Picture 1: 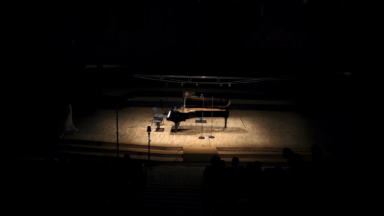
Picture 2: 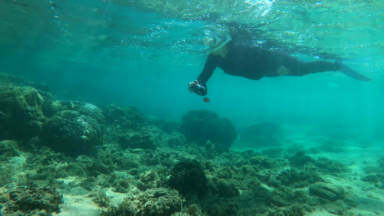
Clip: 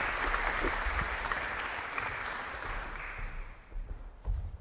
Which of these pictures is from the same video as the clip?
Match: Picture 1